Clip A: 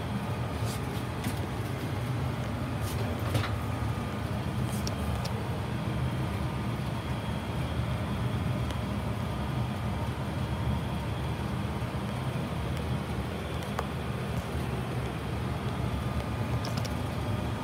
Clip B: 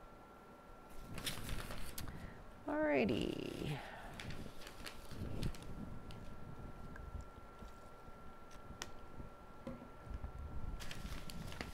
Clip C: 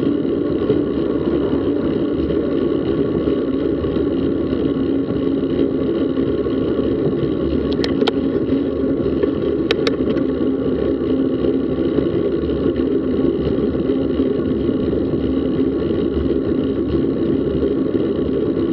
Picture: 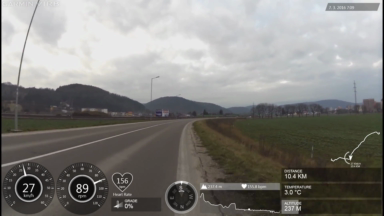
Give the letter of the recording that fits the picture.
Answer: C